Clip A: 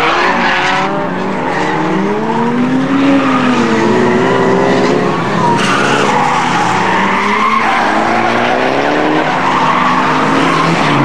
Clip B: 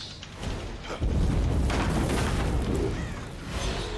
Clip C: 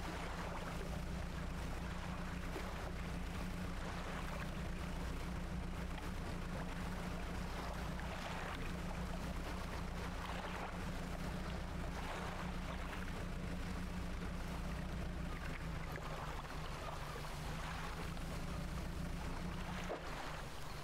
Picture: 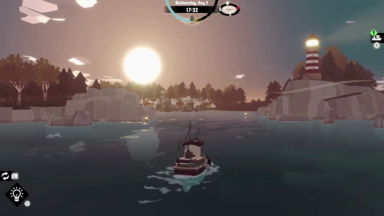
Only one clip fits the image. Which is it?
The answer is C